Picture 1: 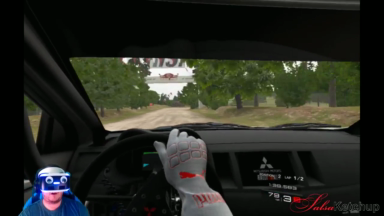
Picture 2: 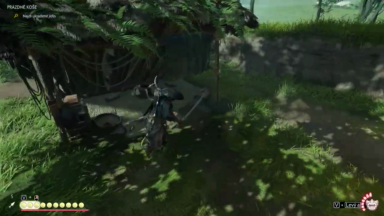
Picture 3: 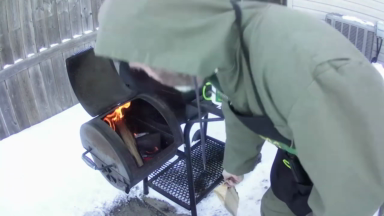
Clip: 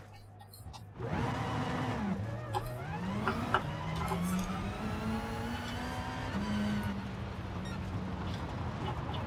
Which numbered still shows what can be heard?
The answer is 1